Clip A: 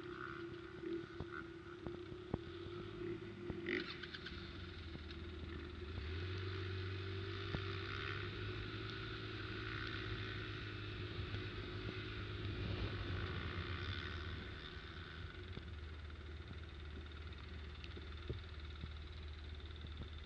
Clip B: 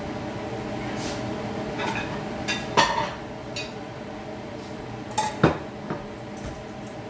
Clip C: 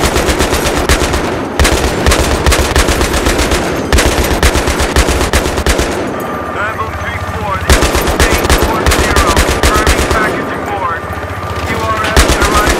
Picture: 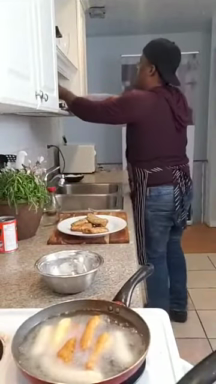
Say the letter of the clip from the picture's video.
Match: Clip B